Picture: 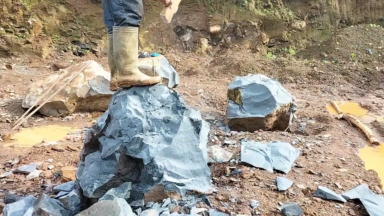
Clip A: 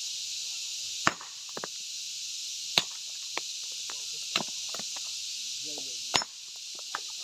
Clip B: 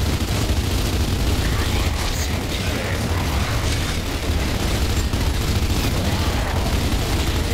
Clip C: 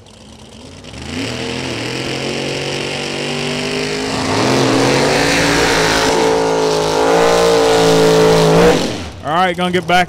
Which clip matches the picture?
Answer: A